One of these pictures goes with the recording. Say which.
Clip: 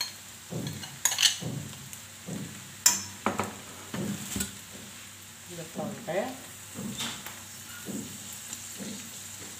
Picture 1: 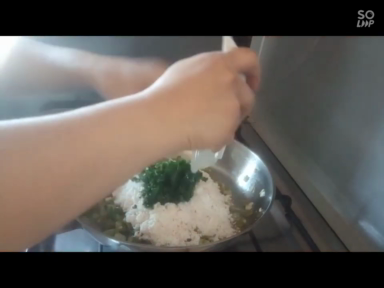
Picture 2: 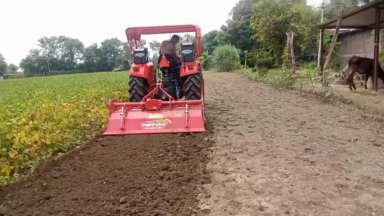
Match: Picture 1